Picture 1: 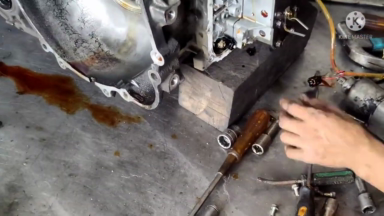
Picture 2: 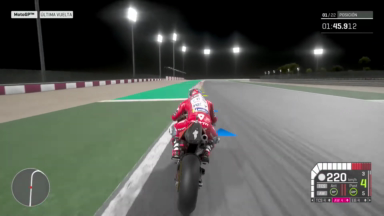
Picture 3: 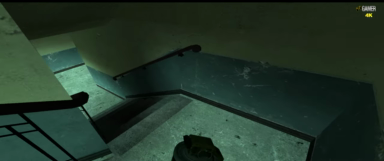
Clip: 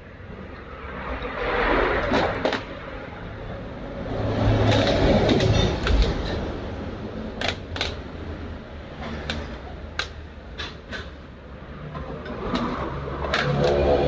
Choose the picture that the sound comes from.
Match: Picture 1